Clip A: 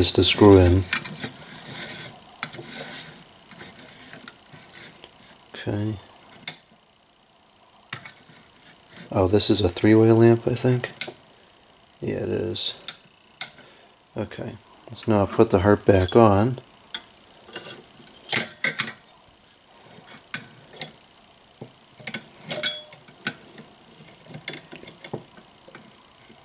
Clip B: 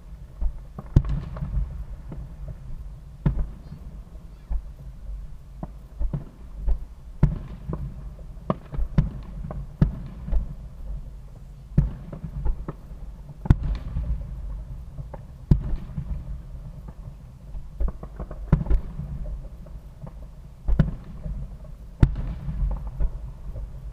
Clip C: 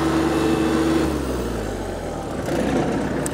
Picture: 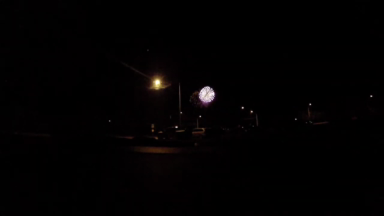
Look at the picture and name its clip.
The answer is B